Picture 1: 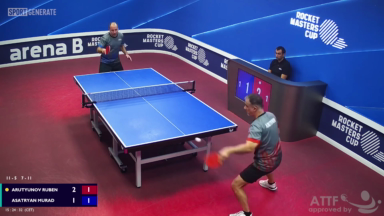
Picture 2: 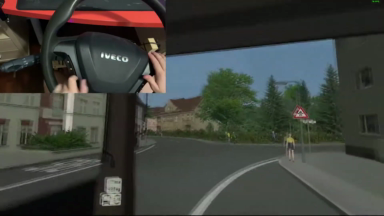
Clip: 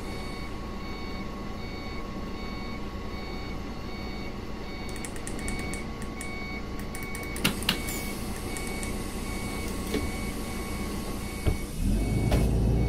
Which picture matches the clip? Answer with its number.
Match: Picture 2